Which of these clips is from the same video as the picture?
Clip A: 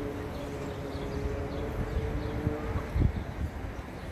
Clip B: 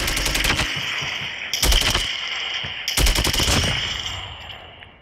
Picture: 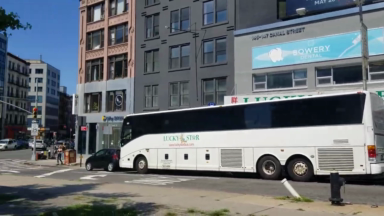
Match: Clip A